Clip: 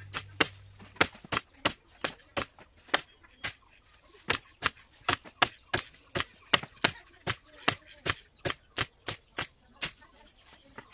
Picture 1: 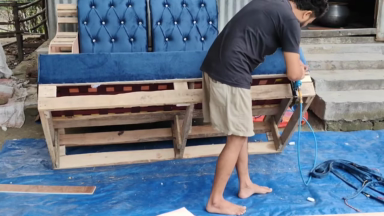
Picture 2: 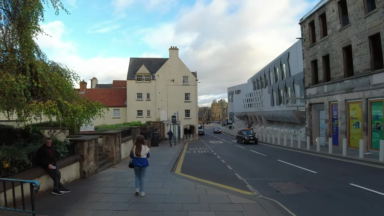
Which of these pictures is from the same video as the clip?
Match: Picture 1